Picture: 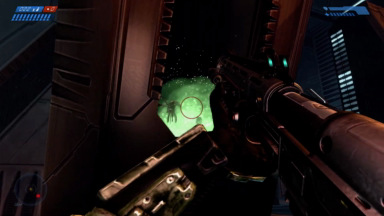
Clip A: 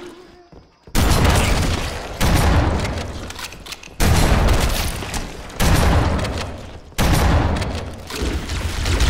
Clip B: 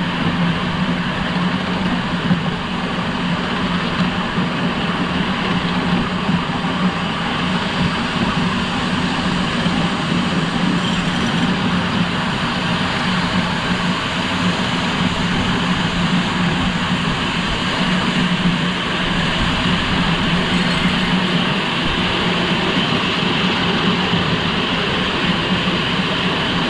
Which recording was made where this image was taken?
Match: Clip A